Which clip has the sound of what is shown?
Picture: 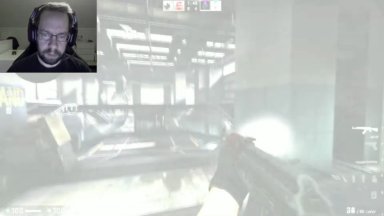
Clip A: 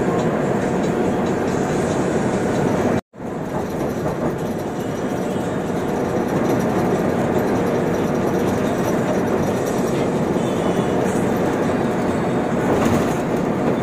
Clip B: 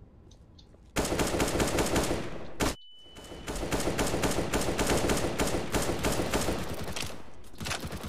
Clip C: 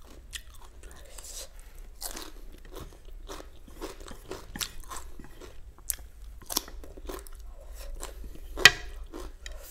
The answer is B